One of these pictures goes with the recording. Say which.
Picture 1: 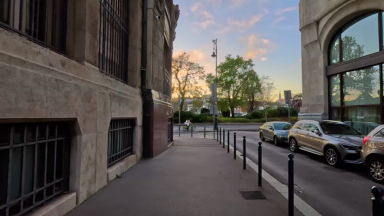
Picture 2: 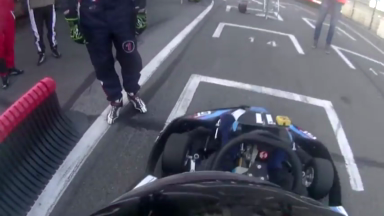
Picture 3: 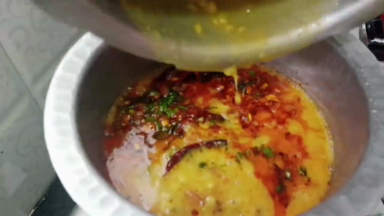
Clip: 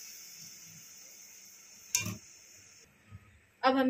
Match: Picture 3